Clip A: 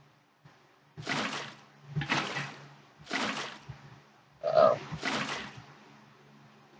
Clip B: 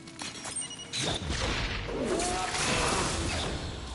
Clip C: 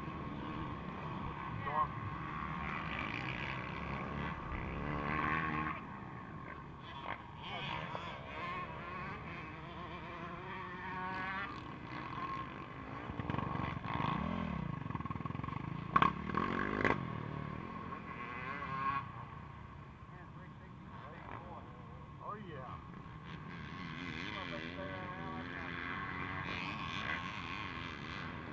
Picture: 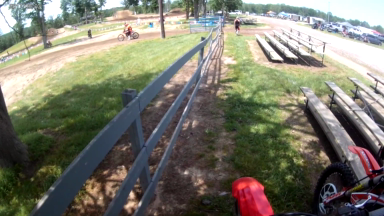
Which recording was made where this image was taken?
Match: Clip C